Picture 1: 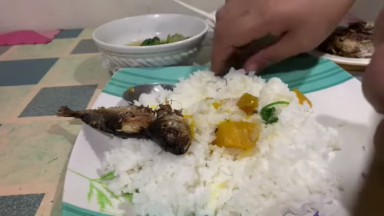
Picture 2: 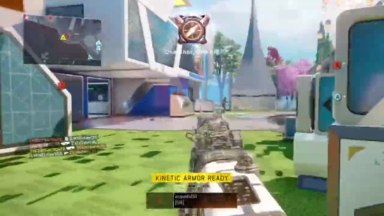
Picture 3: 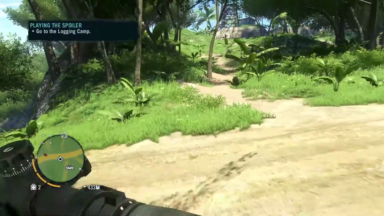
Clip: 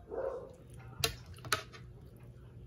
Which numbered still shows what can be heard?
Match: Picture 1